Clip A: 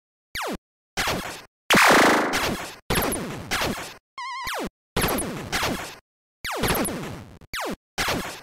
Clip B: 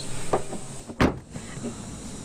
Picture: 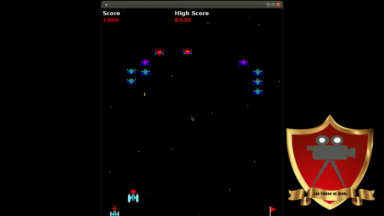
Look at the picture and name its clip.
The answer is A